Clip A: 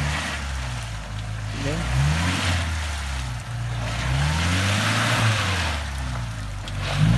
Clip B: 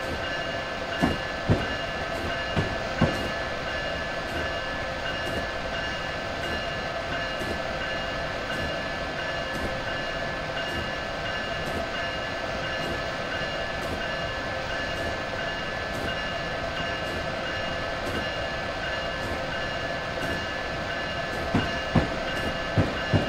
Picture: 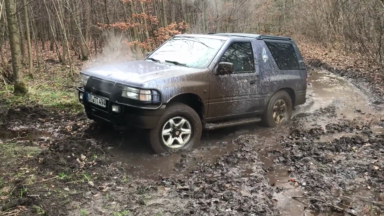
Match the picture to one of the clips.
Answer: A